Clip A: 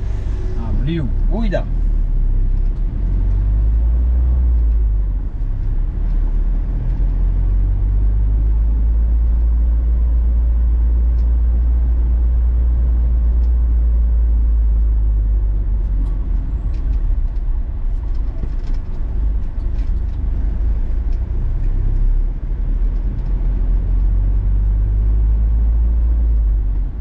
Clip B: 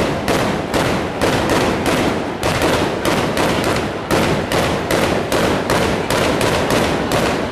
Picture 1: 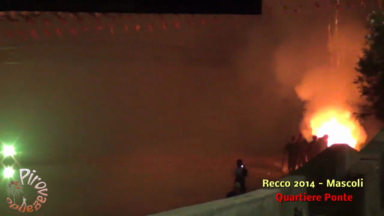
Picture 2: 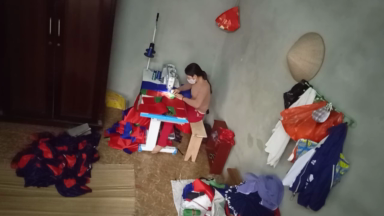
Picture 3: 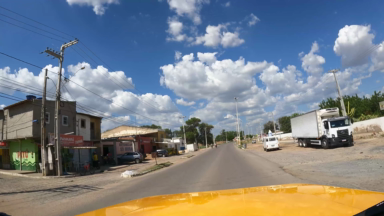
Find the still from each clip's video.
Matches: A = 3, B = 1